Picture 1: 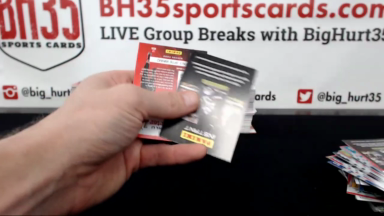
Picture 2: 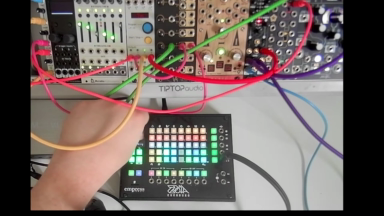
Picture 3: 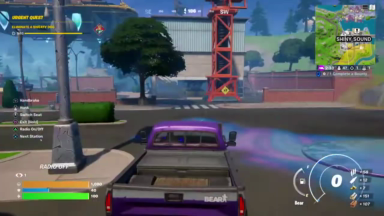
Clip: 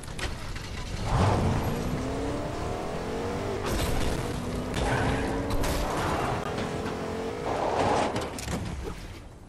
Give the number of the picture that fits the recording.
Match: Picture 3